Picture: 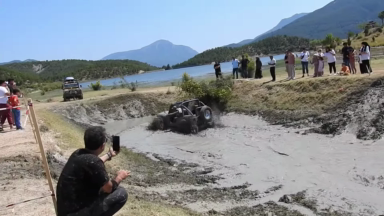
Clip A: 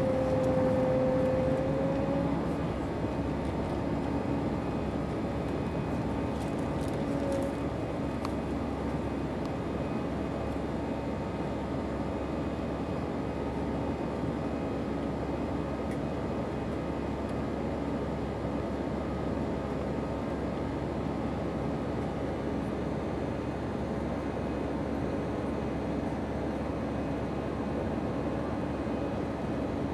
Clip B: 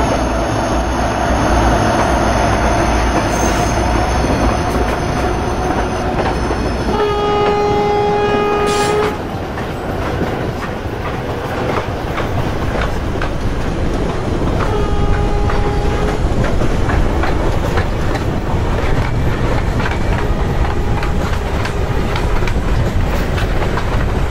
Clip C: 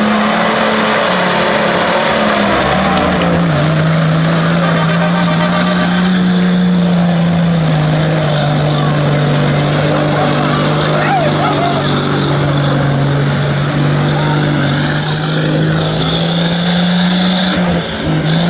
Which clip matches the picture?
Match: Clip C